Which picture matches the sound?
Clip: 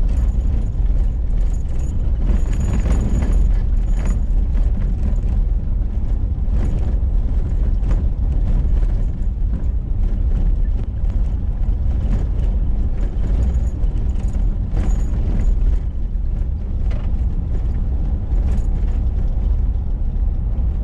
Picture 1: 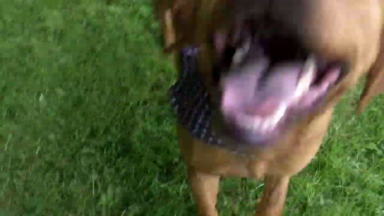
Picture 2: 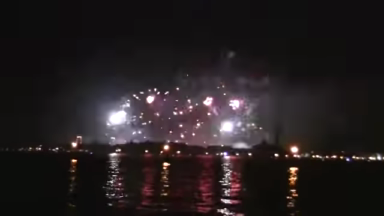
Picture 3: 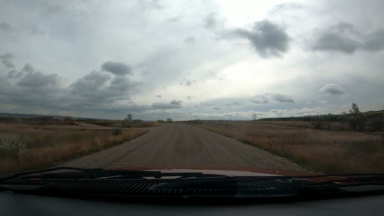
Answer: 3